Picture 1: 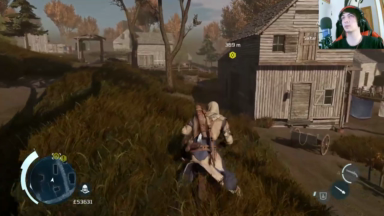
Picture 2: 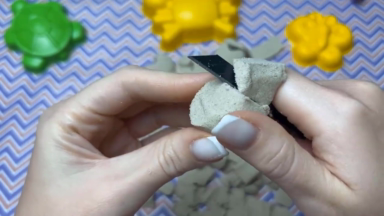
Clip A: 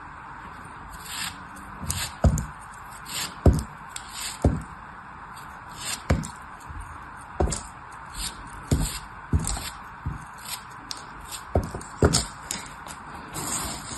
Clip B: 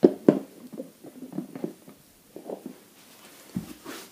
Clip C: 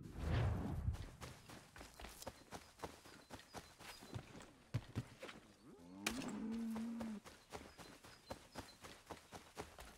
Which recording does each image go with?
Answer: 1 C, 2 A